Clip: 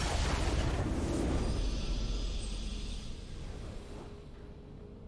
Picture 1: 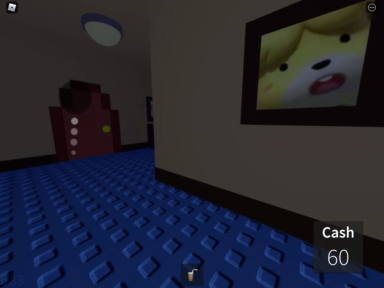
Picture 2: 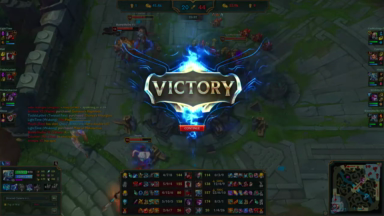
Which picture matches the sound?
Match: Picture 2